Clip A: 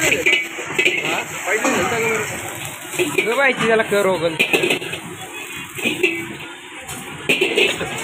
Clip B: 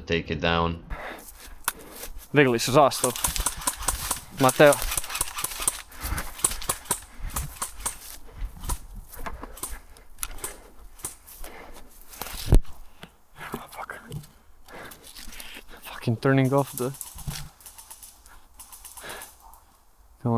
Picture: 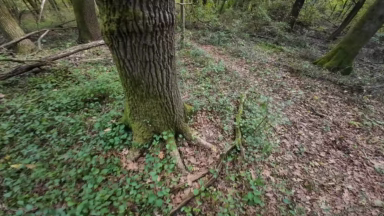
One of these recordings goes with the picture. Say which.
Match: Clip B